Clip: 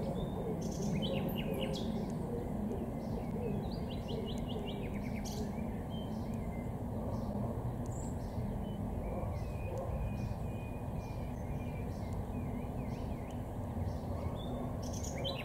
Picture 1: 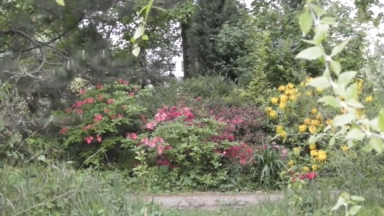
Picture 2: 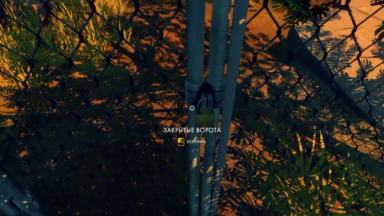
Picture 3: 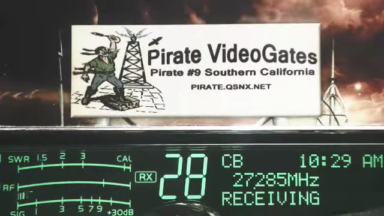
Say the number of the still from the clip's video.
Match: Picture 1